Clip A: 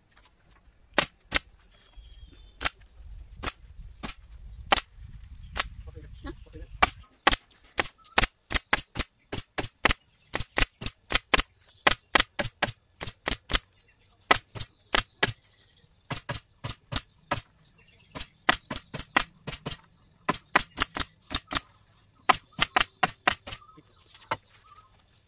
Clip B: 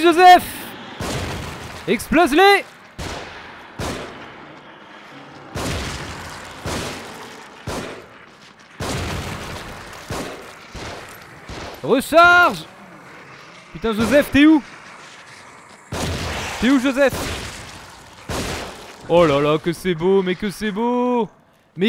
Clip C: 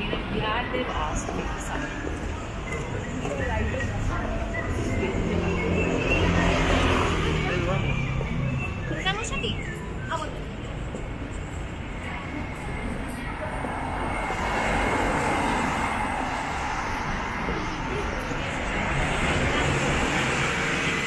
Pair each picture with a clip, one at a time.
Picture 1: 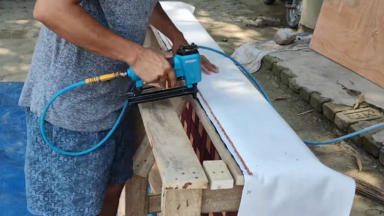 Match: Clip A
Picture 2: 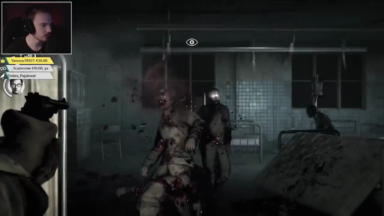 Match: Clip B